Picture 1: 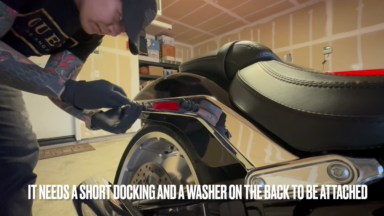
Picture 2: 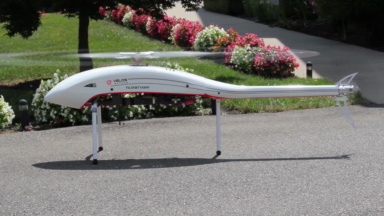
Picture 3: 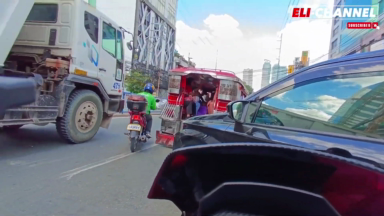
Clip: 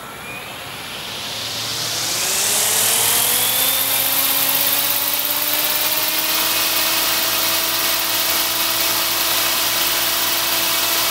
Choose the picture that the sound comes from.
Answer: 2